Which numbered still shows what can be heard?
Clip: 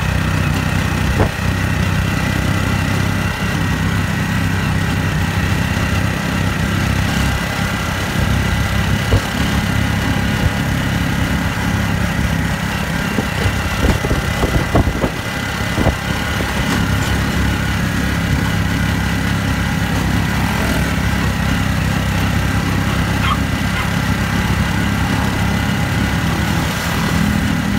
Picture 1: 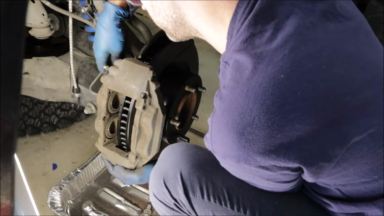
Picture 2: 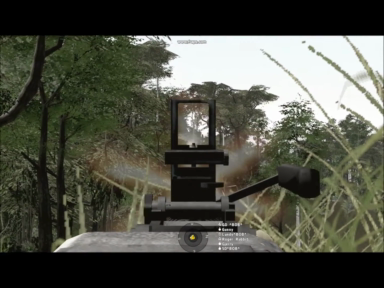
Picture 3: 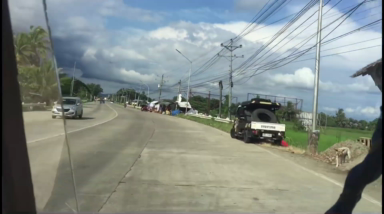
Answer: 3